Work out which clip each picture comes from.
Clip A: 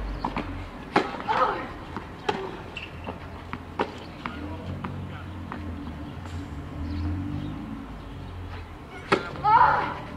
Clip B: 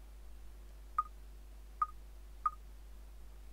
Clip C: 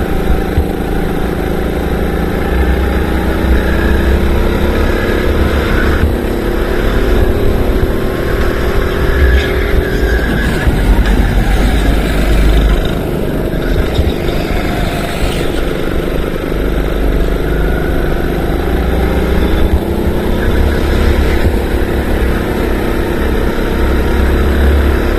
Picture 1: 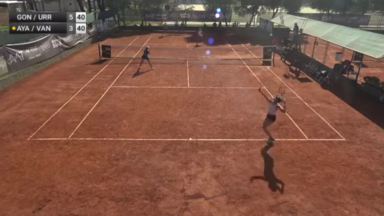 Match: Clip A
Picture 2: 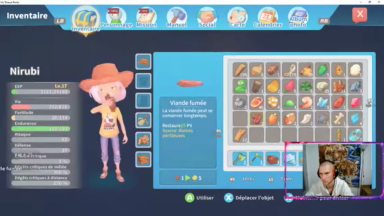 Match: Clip B